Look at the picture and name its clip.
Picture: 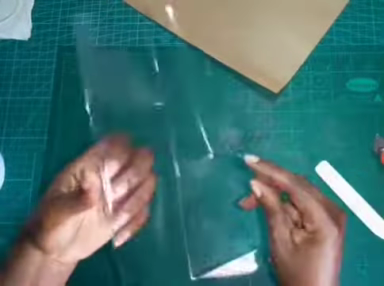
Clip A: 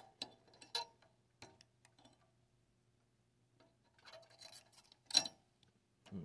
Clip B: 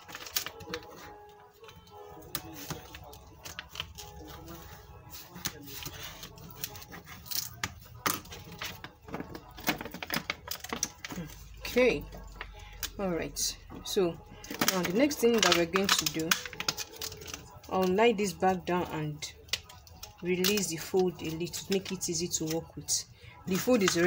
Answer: B